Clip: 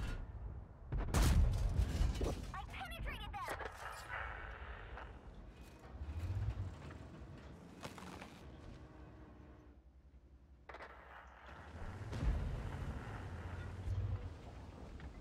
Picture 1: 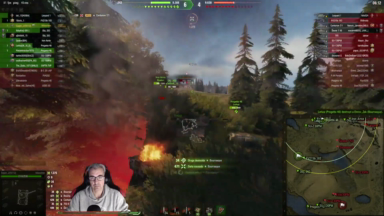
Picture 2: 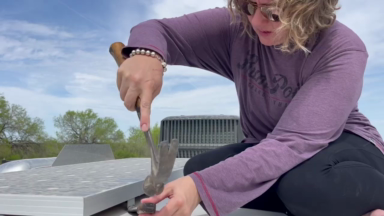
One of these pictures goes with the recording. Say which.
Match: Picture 1